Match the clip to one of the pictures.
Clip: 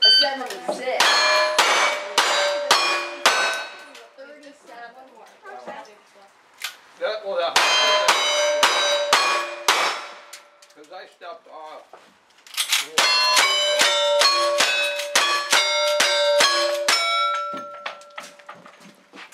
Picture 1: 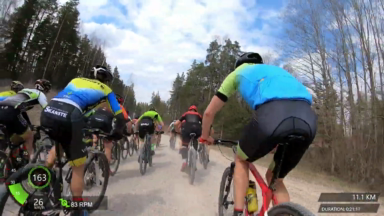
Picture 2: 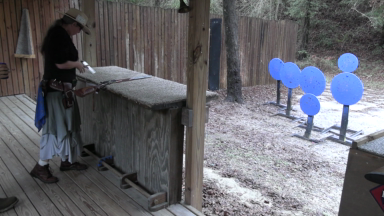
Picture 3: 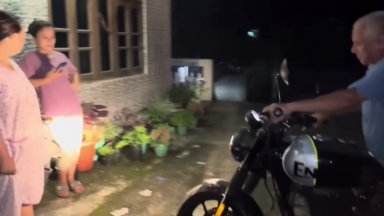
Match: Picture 2